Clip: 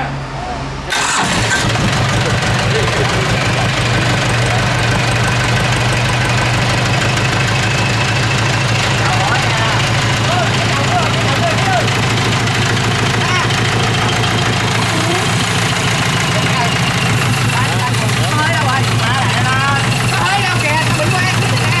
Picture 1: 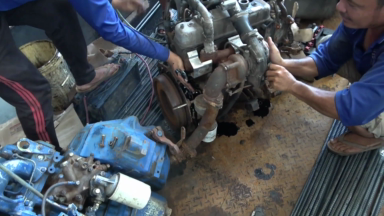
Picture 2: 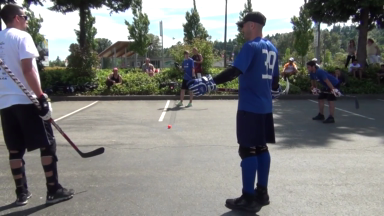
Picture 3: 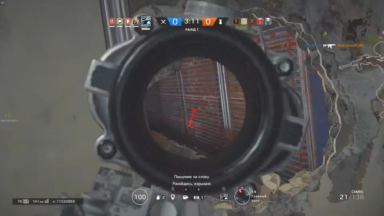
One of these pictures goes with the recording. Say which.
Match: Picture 1